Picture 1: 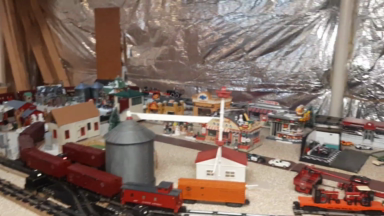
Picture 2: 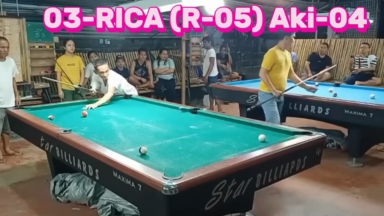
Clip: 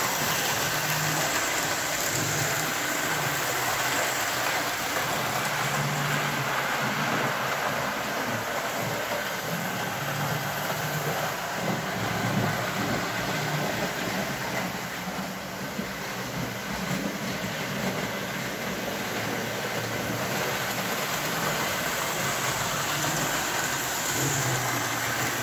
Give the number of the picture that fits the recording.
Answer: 1